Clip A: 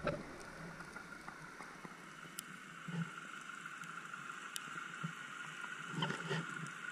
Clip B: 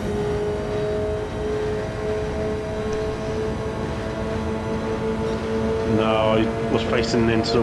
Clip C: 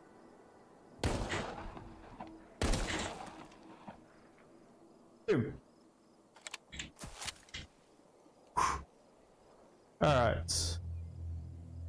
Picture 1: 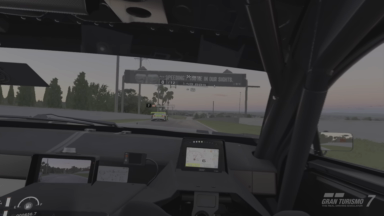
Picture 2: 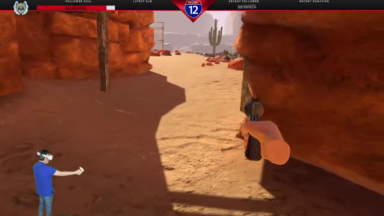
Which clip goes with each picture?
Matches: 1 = B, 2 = C